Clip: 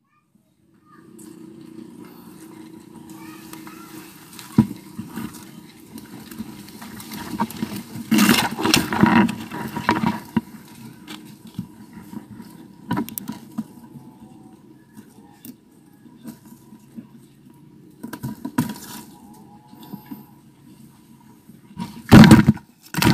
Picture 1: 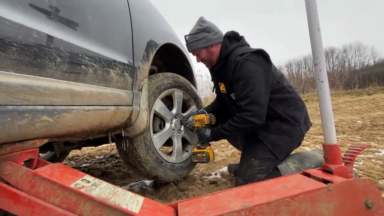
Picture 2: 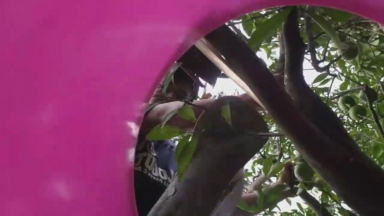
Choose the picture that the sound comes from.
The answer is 2